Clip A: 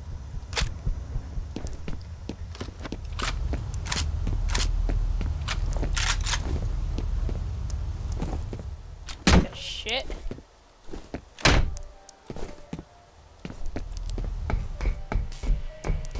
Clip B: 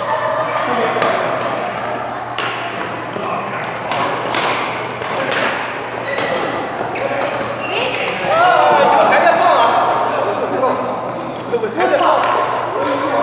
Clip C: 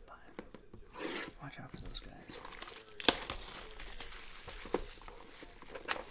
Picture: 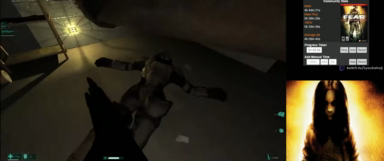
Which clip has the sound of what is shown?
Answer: A